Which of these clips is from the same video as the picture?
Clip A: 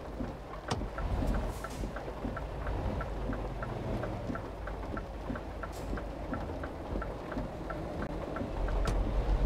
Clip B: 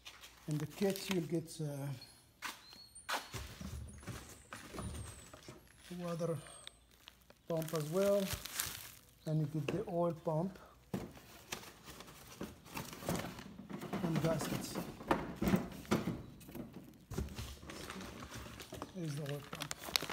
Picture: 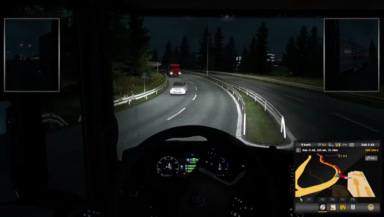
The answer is A